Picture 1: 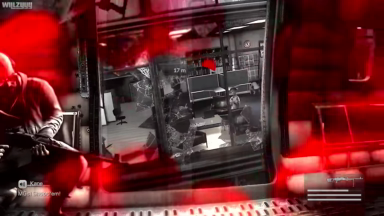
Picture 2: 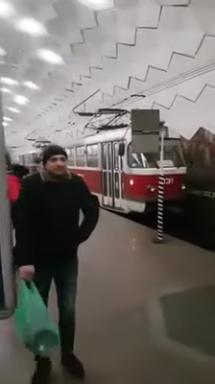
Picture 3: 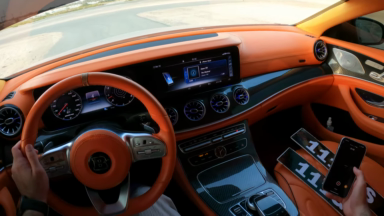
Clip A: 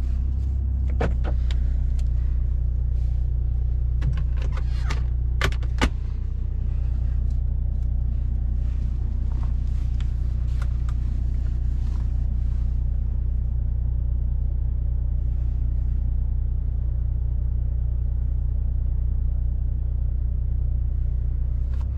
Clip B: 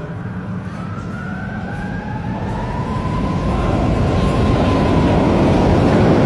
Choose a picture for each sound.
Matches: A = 3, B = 2